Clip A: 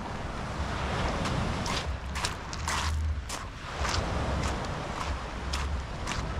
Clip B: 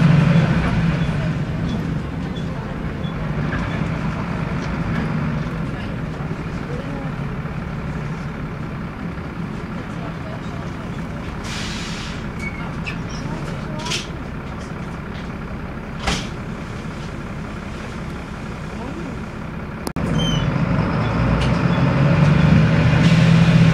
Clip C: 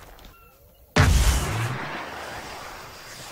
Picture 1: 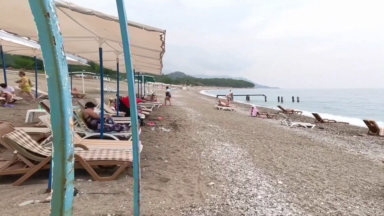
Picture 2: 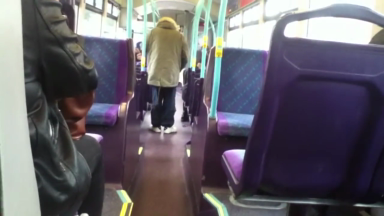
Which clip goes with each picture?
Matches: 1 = A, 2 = B